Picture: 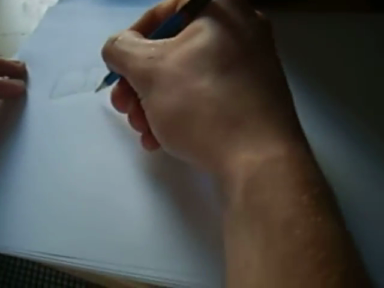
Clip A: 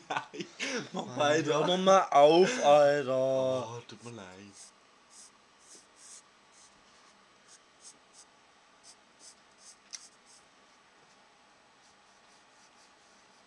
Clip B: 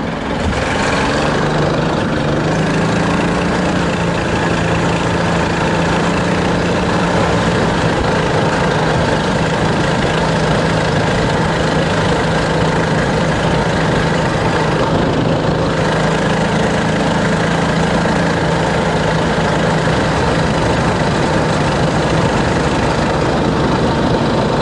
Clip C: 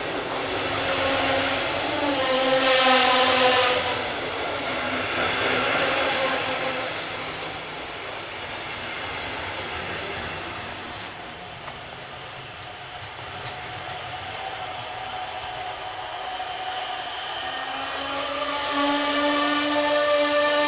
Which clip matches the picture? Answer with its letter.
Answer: A